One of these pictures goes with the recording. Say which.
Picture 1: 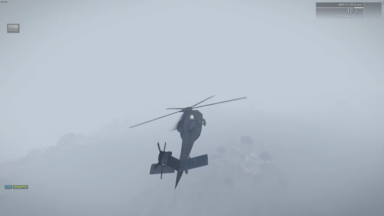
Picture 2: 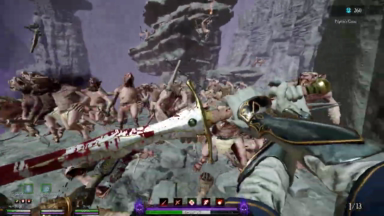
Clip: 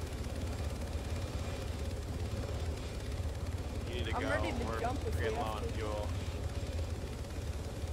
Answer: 1